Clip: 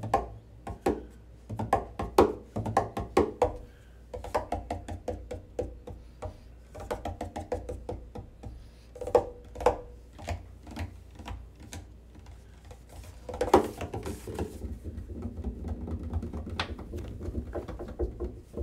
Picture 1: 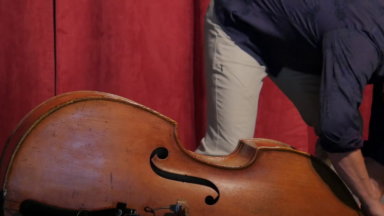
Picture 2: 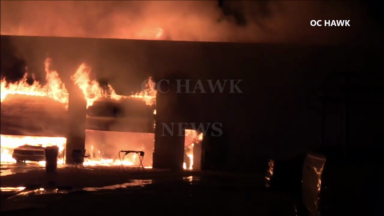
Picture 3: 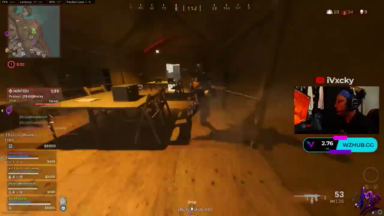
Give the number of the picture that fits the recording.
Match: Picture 1